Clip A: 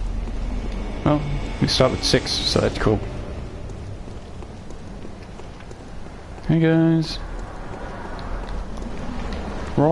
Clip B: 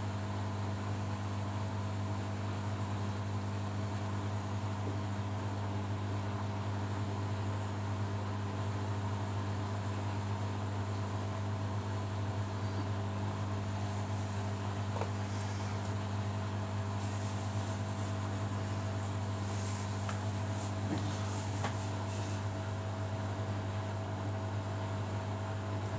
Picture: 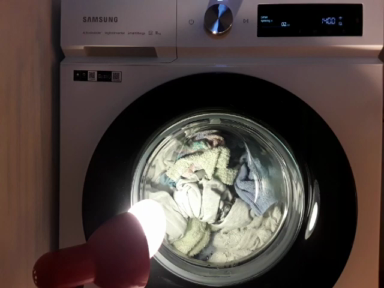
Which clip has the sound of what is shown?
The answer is B